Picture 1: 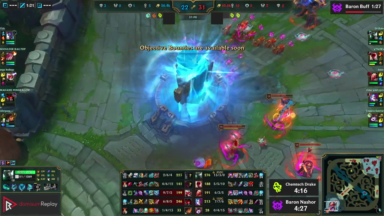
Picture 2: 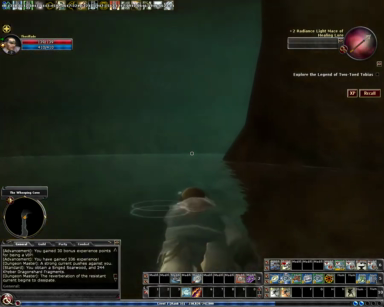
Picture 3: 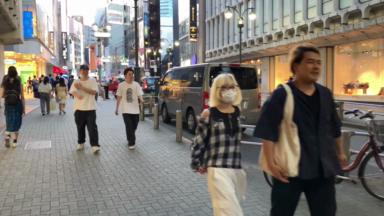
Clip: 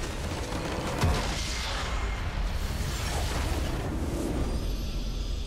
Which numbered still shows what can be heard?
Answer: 1